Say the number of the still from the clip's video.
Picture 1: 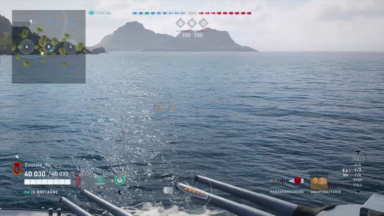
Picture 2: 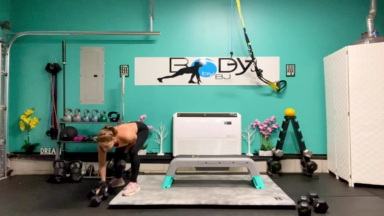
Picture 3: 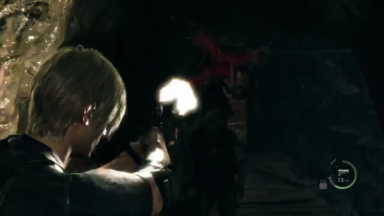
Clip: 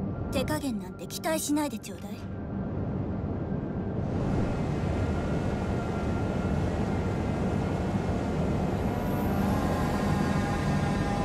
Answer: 1